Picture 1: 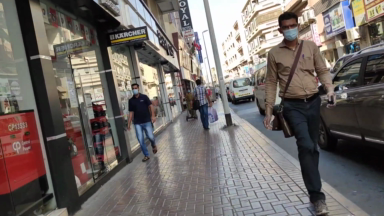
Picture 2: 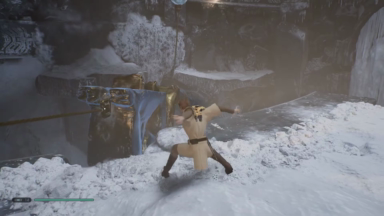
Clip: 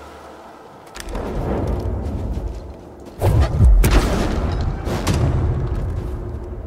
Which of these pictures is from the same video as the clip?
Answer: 2